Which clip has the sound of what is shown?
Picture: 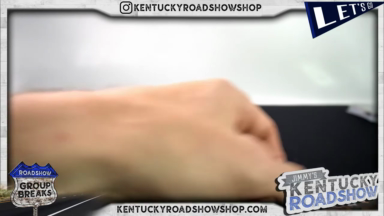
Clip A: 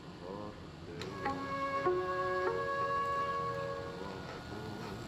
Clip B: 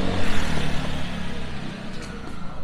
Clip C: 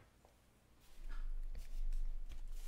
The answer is C